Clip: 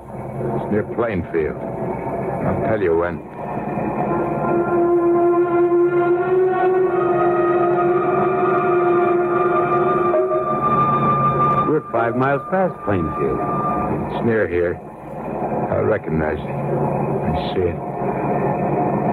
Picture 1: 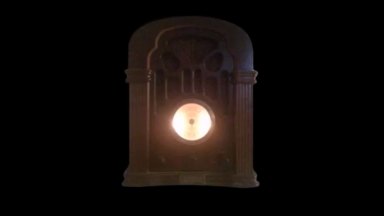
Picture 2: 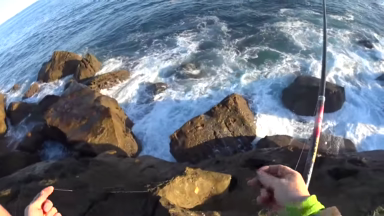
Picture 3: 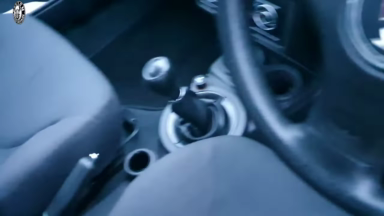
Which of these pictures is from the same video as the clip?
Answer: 1